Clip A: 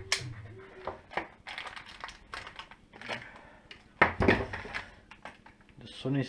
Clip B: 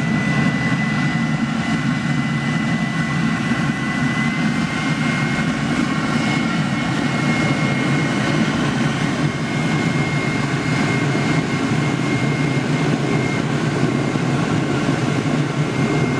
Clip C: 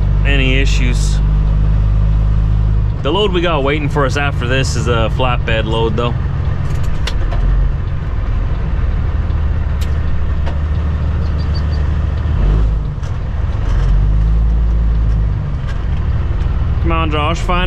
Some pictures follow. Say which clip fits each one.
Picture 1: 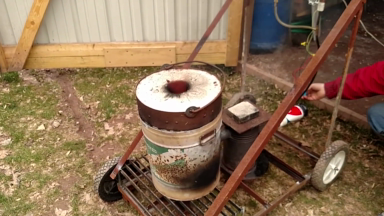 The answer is B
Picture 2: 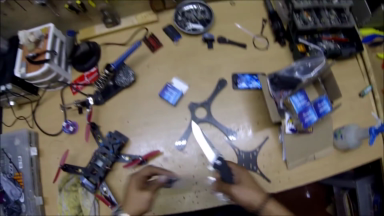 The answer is A